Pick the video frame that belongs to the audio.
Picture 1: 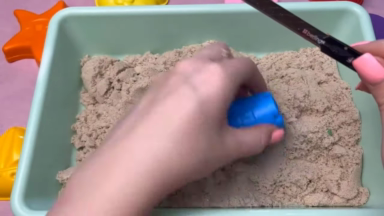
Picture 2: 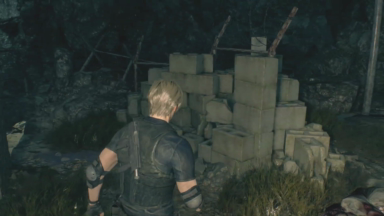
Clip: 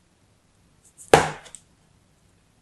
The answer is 1